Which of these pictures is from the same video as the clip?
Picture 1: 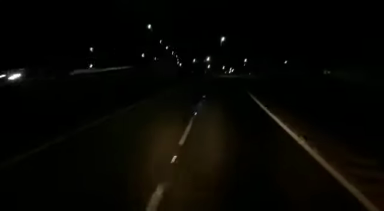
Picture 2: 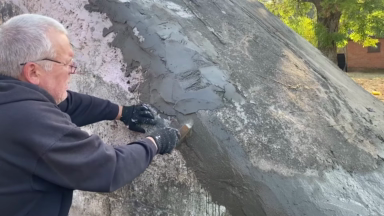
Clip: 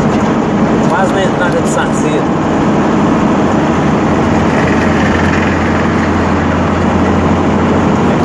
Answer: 1